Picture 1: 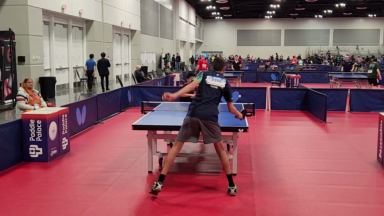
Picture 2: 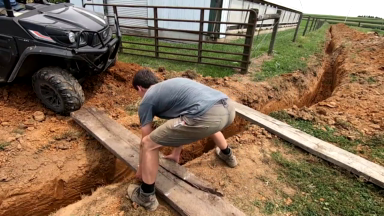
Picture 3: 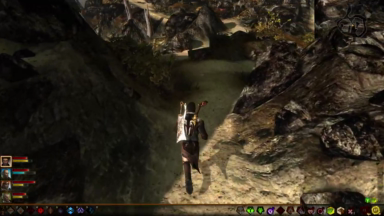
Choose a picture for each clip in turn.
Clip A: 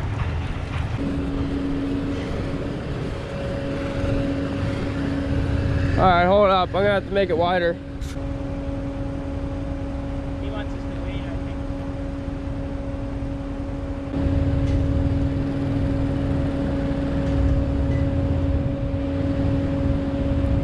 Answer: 2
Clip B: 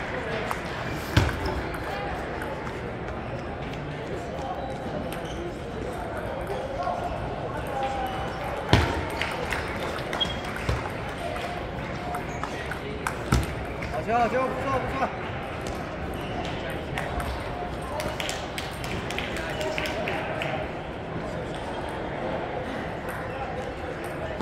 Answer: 1